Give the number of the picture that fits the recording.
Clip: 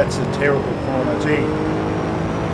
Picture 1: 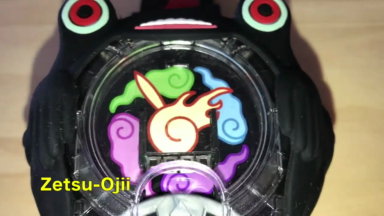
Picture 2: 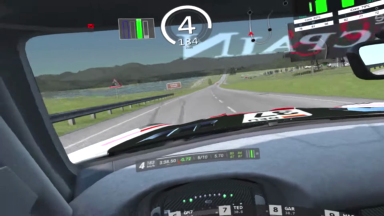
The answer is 2